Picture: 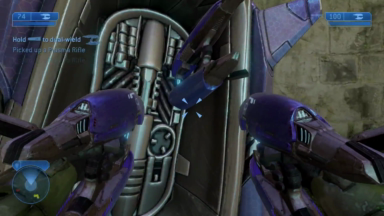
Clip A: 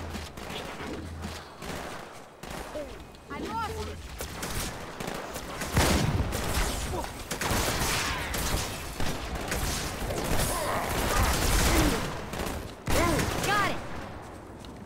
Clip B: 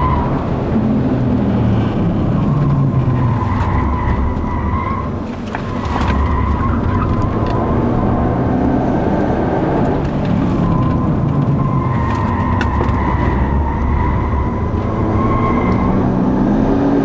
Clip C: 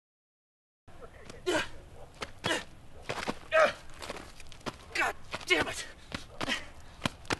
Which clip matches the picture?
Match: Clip A